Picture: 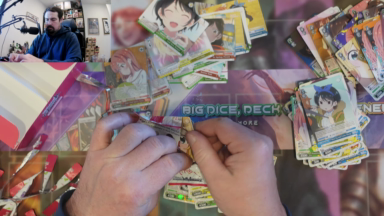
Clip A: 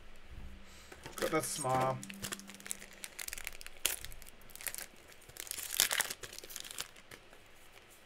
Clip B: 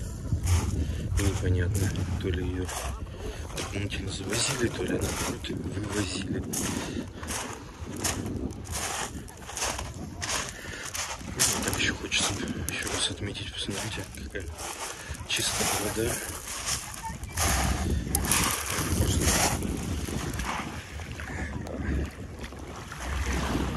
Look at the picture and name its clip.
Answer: A